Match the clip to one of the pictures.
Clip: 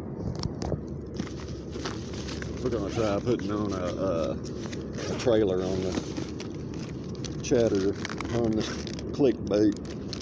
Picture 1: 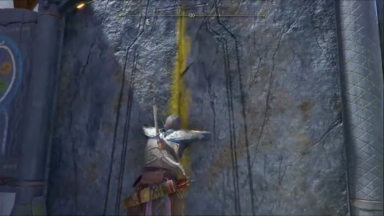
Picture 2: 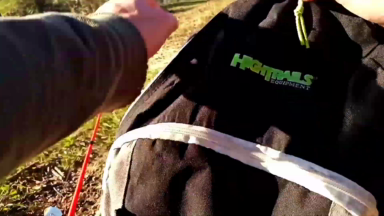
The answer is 2